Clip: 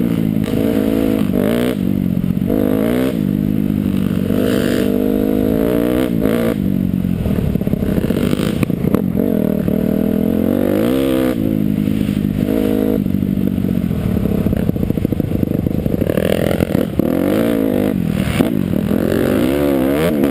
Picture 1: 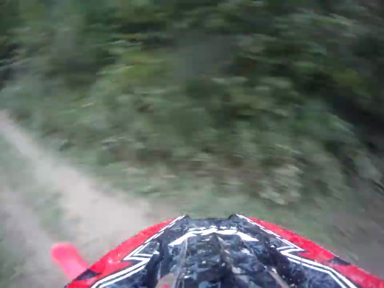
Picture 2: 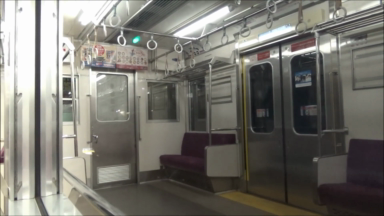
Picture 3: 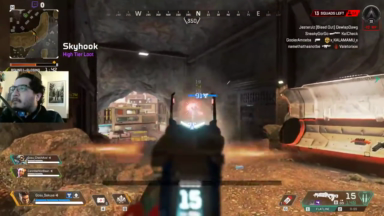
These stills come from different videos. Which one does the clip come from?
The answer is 1